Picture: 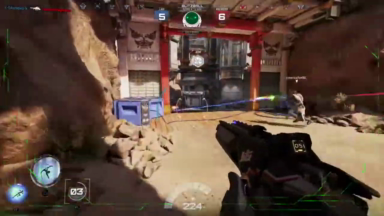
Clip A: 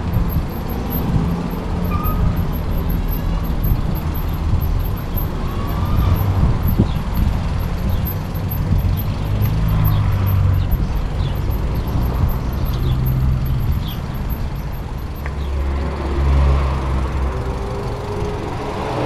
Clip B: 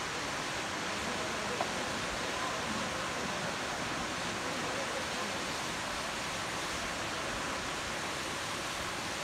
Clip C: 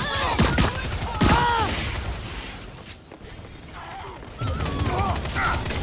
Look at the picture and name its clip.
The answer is C